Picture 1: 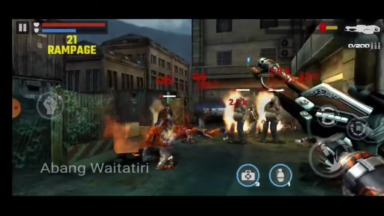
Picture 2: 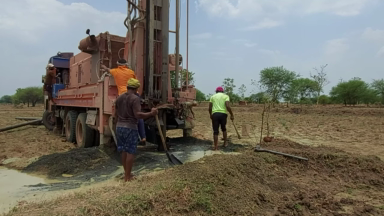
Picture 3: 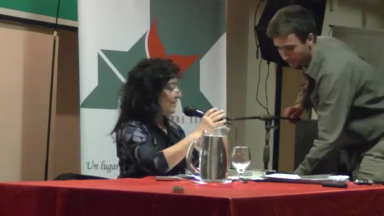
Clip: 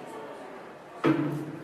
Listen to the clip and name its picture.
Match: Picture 3